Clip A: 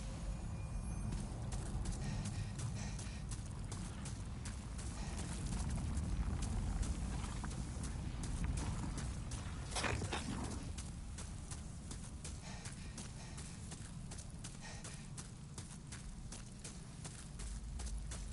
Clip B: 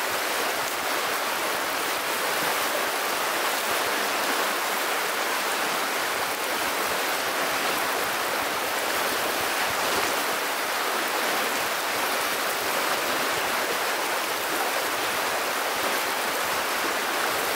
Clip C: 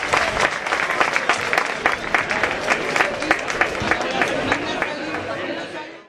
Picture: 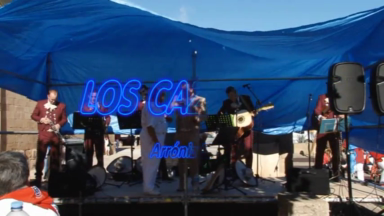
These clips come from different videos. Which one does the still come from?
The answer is C